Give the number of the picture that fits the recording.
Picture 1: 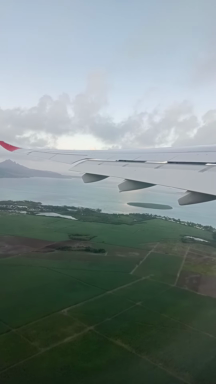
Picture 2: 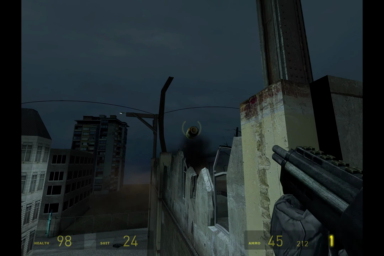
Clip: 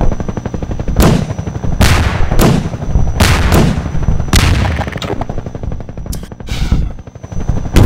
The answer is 2